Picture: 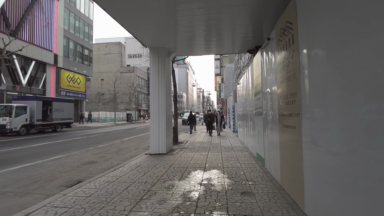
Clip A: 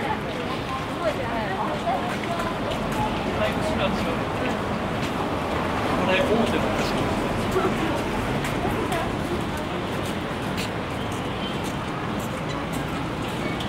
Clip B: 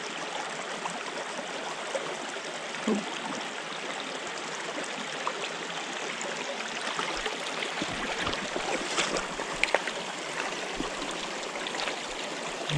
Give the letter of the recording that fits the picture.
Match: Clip A